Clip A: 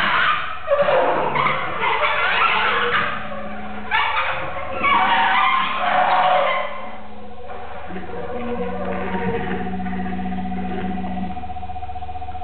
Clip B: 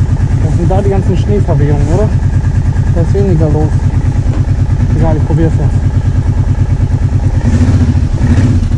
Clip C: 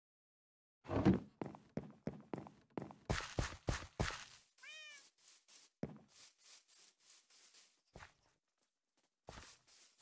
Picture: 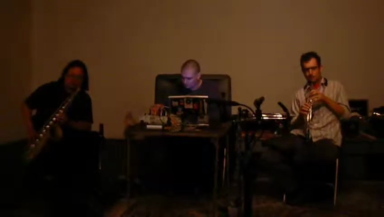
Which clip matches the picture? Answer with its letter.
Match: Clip A